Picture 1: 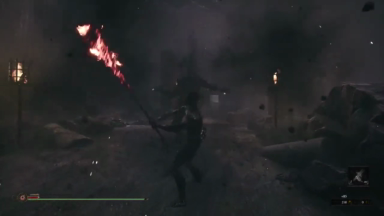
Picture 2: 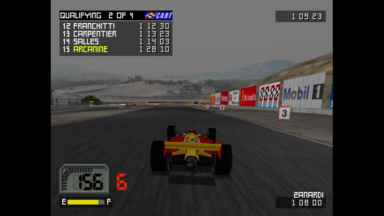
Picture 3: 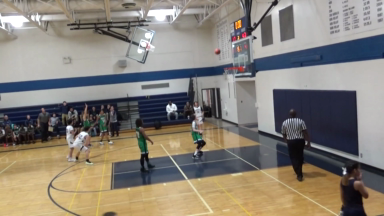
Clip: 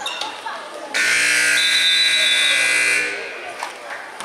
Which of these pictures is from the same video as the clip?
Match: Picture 3